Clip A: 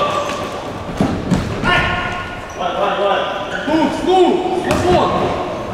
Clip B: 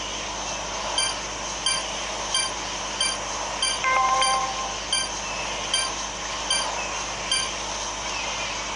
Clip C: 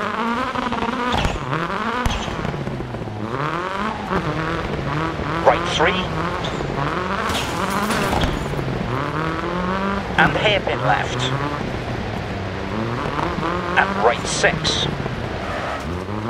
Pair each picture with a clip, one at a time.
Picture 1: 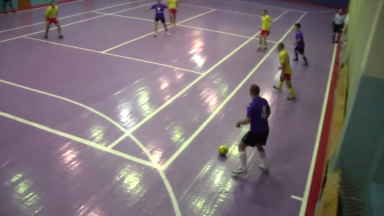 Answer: A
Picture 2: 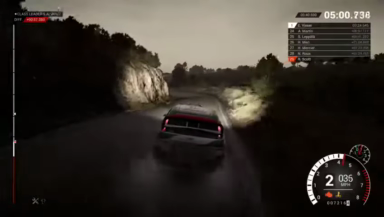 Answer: C